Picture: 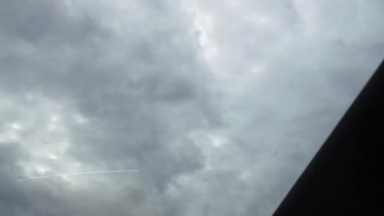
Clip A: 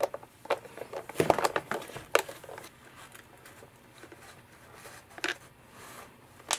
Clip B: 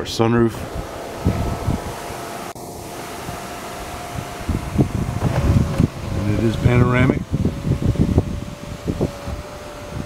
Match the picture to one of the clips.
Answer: B